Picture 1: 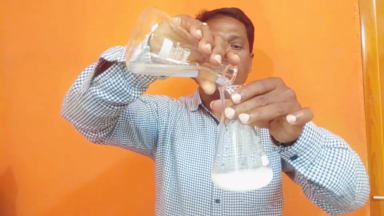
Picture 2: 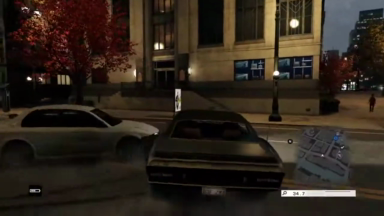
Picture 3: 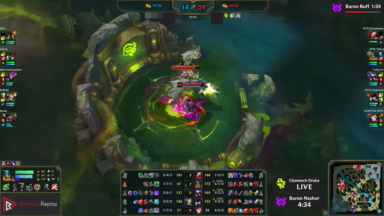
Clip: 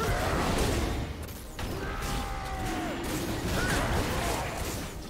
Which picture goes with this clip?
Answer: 3